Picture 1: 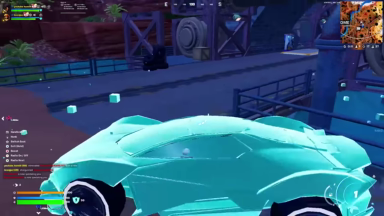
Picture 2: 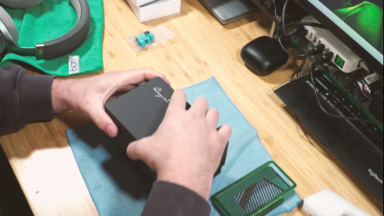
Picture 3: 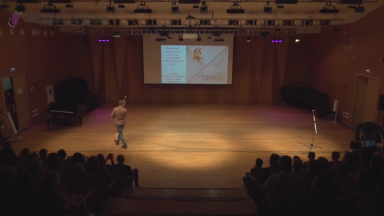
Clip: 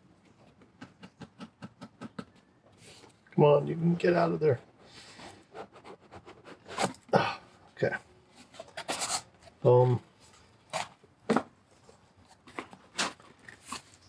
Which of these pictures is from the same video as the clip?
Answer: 2